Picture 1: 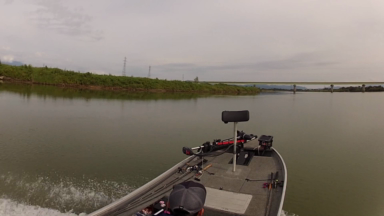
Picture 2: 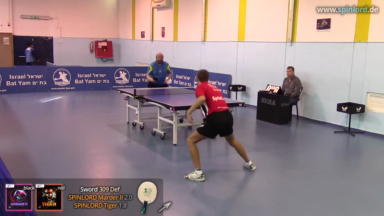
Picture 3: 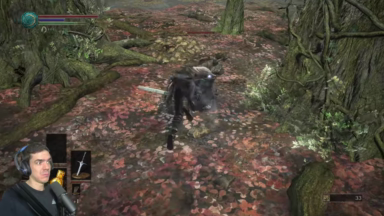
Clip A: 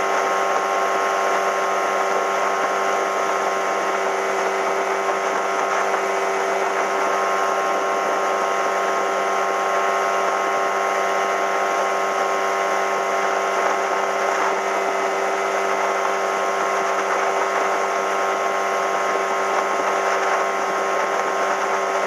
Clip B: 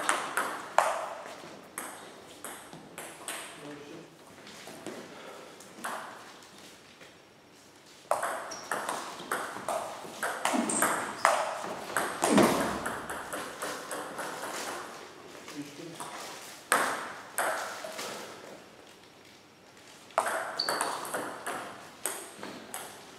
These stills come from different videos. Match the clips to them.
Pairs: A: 1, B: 2